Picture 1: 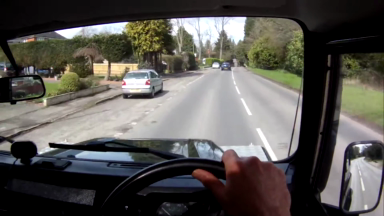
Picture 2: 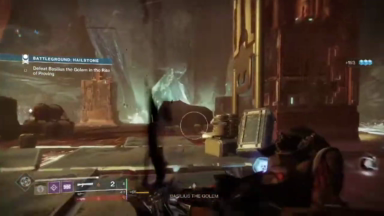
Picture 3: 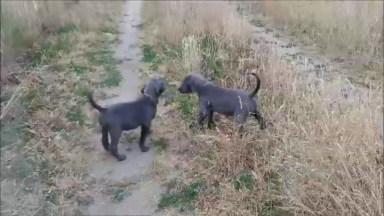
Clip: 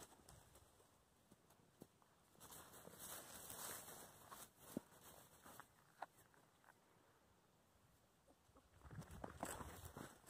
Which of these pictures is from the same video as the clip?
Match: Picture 3